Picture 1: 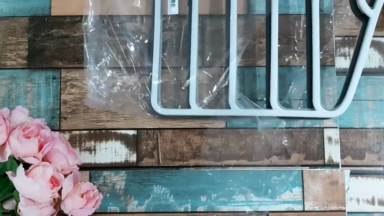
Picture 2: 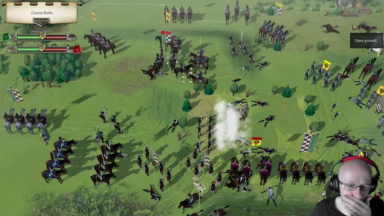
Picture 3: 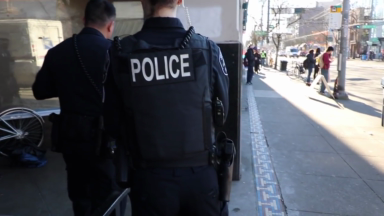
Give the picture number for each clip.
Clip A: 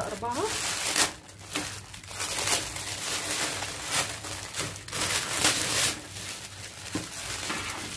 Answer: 1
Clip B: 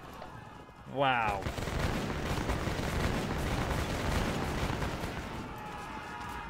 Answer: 2